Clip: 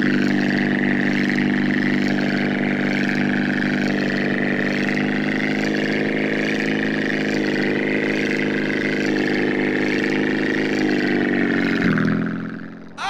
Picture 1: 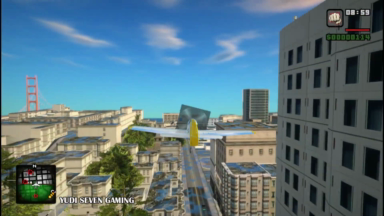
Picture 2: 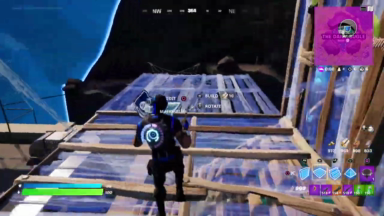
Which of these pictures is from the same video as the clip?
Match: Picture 1